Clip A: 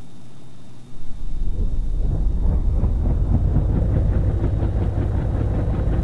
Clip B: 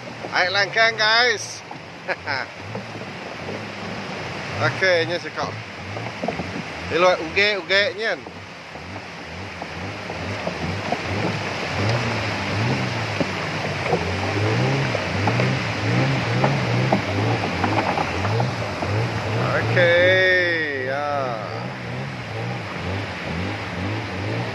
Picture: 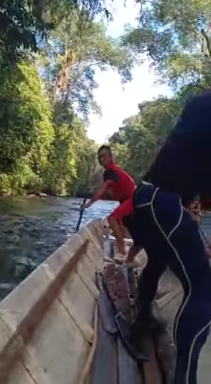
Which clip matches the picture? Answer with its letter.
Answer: B